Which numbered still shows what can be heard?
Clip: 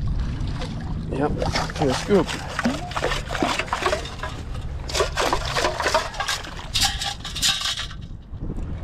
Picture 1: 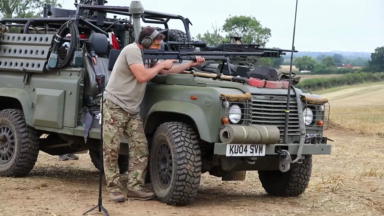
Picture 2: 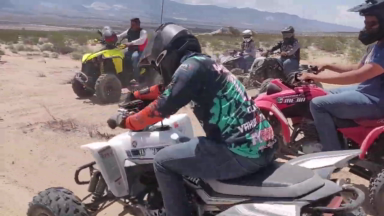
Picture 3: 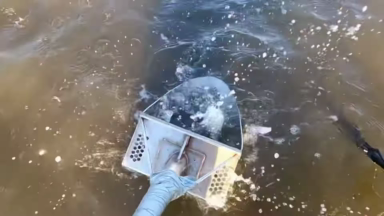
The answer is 3